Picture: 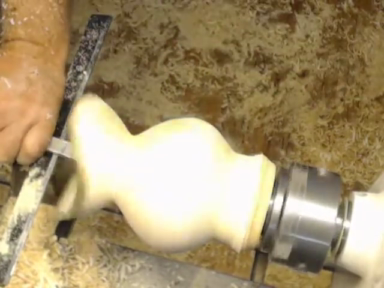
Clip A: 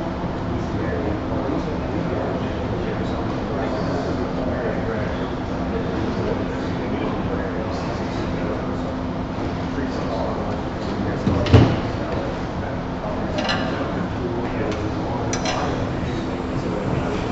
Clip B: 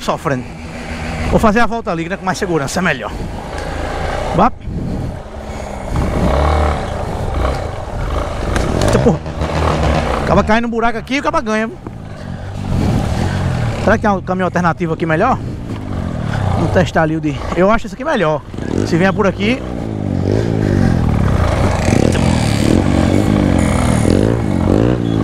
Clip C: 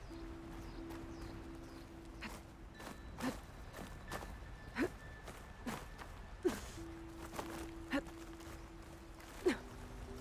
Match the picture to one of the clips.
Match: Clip A